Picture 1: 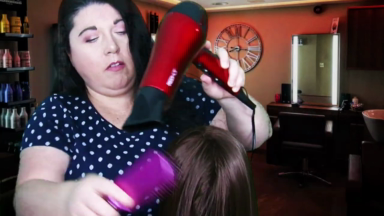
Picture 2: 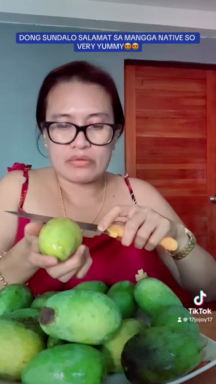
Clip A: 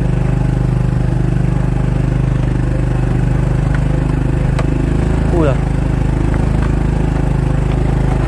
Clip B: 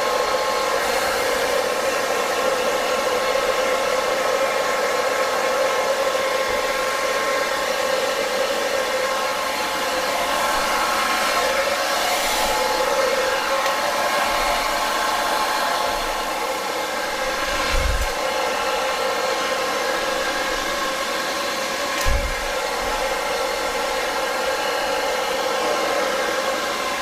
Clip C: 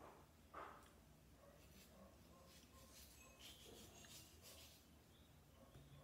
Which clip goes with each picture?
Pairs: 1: B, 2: C